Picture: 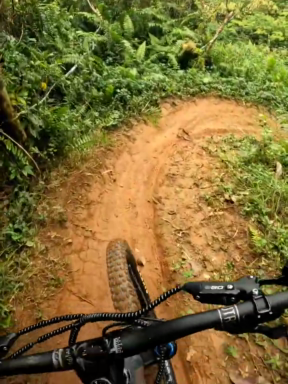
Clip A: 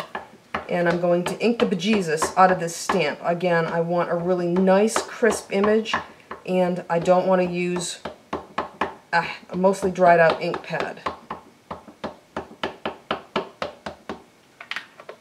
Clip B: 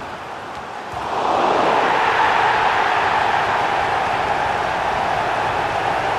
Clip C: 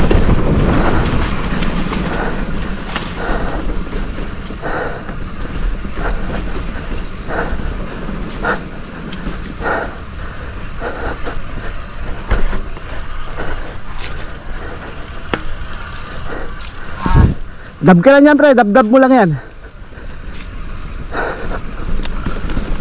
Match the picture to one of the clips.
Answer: C